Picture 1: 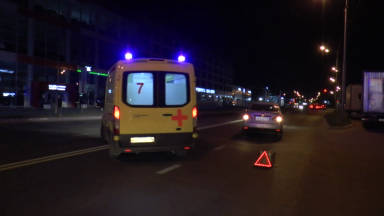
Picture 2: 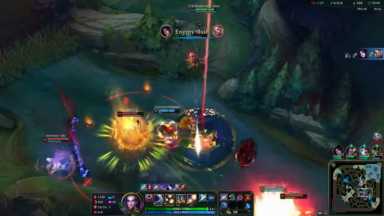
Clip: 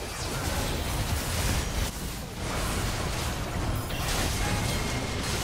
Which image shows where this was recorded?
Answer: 2